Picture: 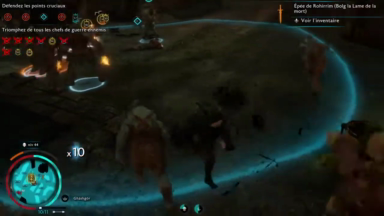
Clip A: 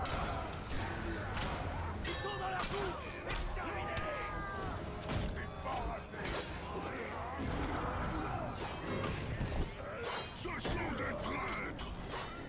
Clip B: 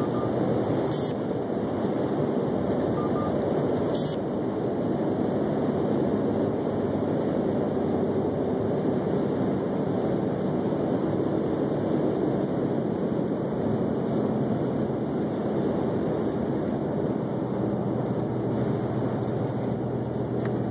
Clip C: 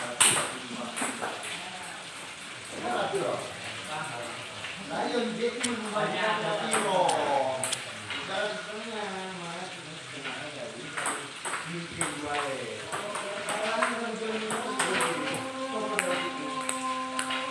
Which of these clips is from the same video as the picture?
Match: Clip A